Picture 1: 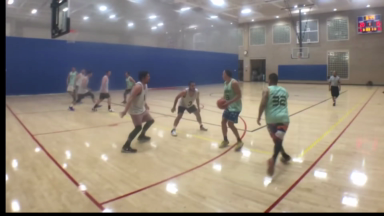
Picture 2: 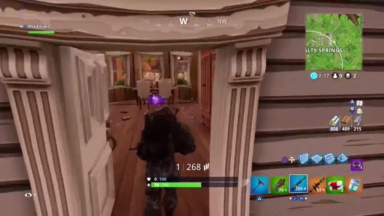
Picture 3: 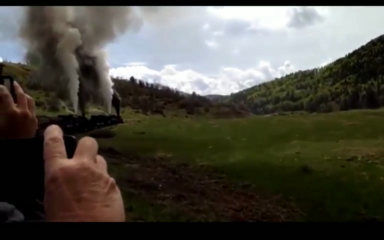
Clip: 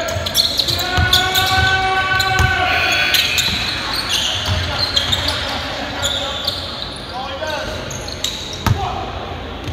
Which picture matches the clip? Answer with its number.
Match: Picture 1